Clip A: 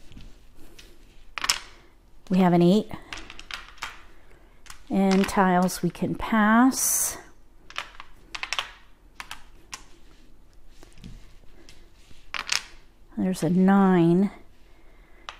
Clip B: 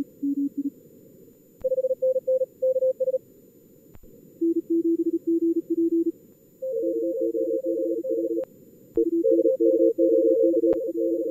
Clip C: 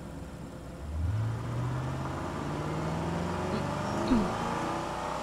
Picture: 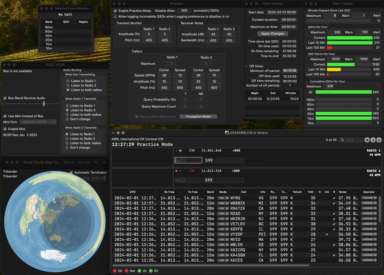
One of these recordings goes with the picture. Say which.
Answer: B